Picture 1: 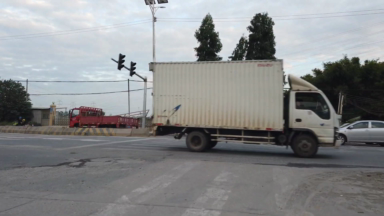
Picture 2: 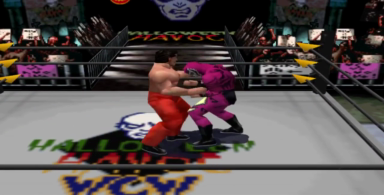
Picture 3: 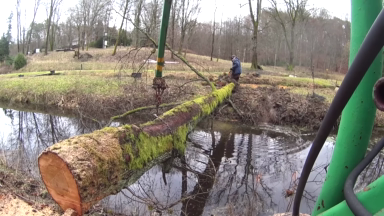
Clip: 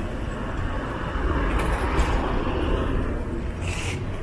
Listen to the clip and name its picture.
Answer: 1